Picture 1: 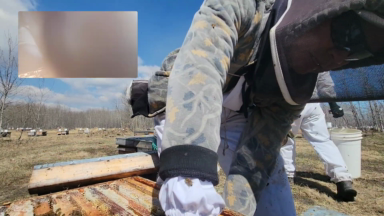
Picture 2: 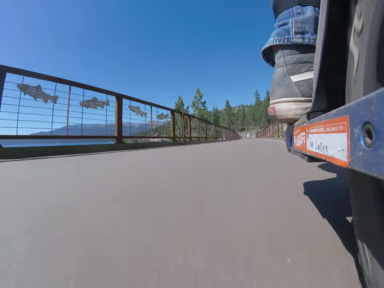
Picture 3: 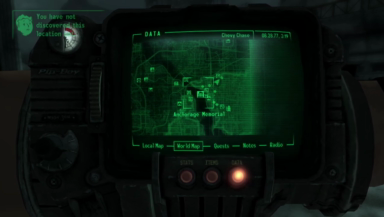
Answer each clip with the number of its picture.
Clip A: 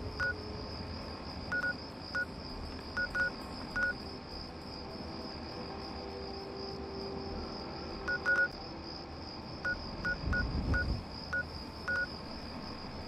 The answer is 3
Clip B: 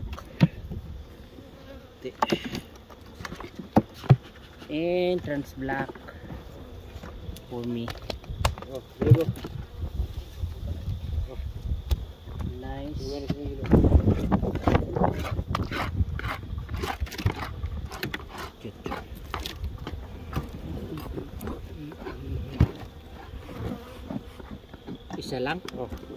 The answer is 1